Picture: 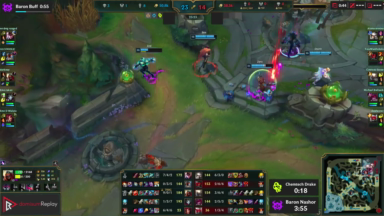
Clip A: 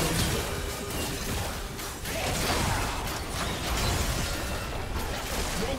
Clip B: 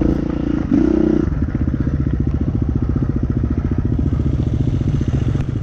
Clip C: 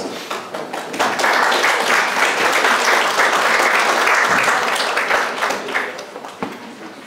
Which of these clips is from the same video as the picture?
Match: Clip A